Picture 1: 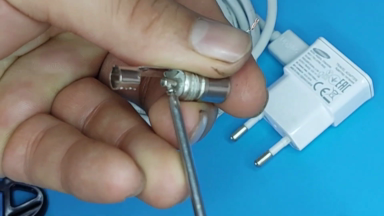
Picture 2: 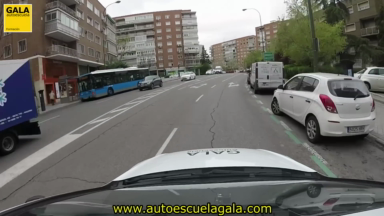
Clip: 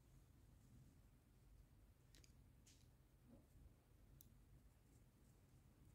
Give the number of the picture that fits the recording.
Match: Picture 1